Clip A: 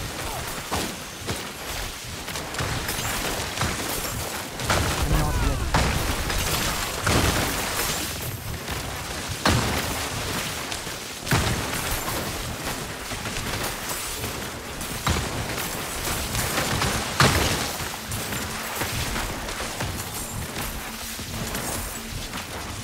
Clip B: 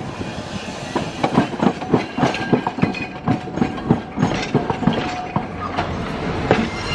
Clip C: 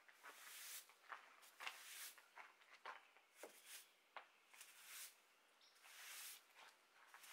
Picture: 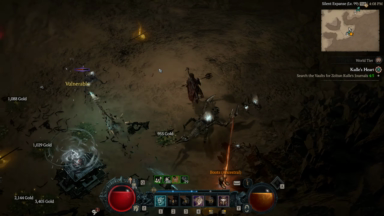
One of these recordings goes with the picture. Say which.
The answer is A